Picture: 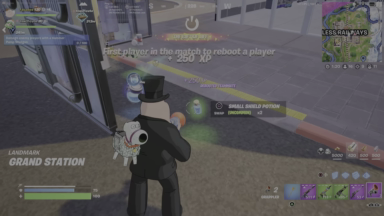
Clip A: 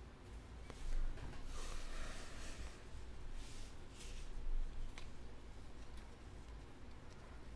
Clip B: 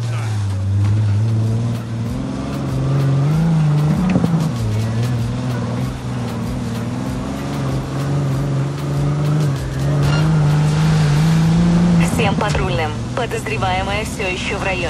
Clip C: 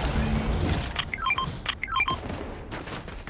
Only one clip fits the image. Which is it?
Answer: C